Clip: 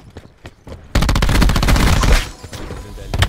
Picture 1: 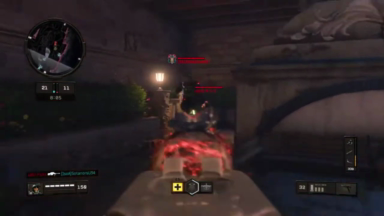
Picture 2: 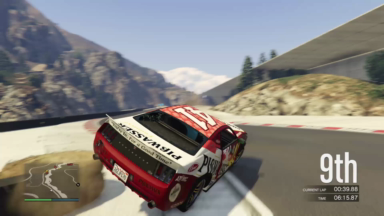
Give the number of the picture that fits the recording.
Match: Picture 1